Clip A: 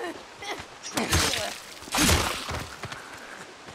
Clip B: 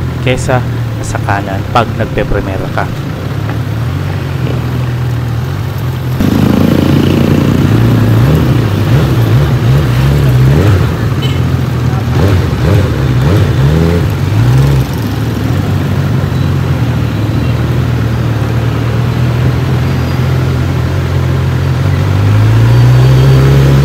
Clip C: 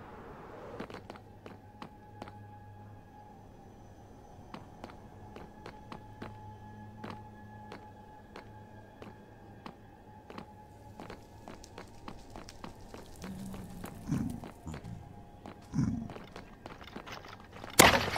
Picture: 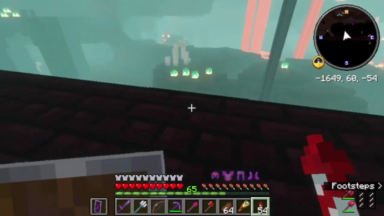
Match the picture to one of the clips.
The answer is C